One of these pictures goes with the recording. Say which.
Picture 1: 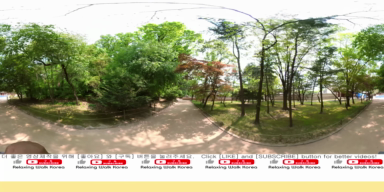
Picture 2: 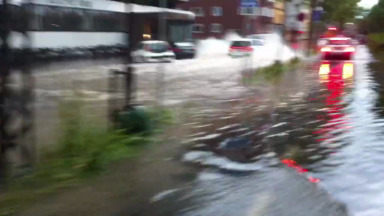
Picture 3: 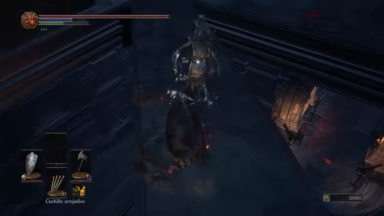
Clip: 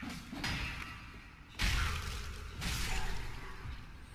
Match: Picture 3